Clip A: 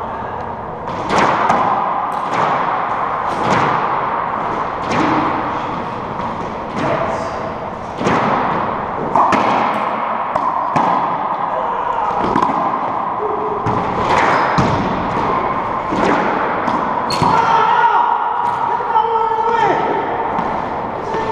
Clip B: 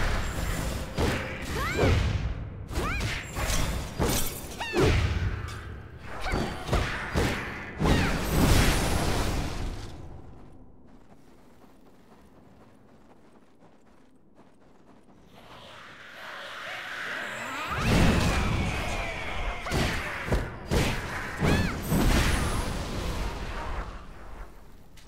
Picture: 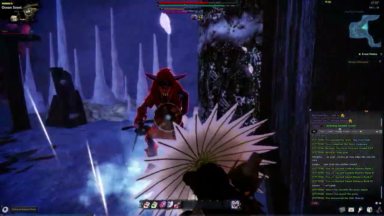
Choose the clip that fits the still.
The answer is B